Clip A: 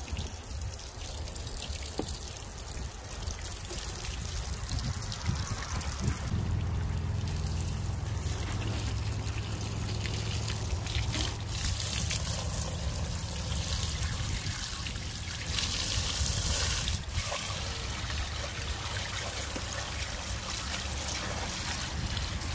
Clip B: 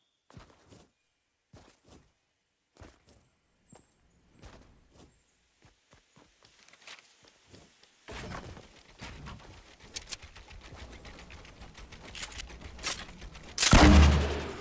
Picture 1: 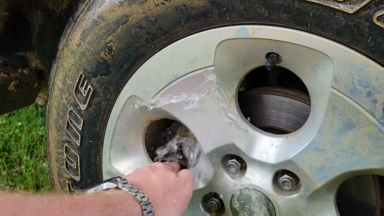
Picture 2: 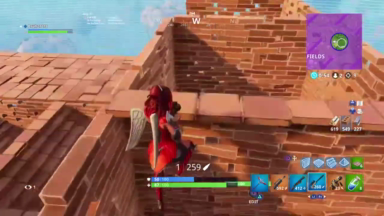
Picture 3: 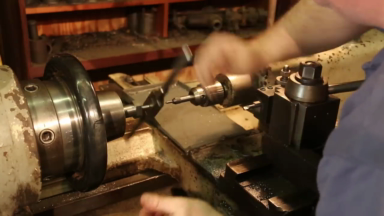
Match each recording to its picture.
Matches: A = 1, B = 2